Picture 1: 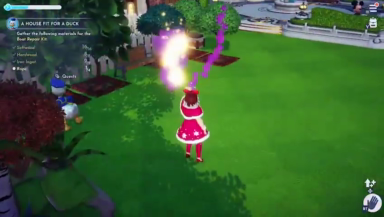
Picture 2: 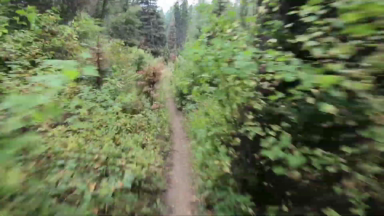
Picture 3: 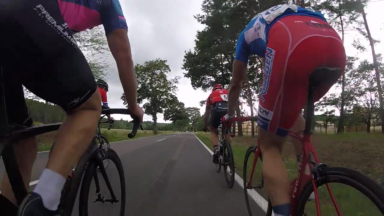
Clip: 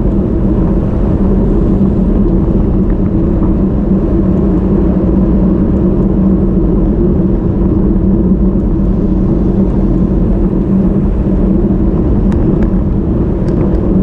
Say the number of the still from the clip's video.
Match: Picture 3